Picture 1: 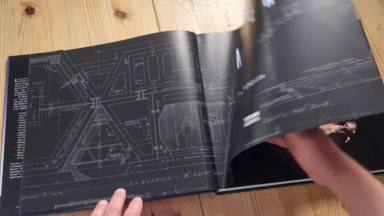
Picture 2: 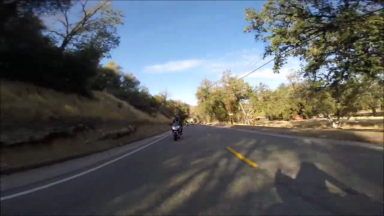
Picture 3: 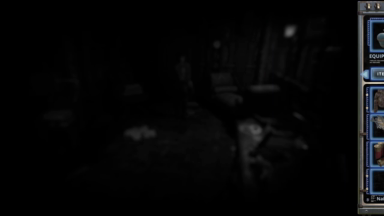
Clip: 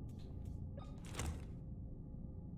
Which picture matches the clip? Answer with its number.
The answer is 3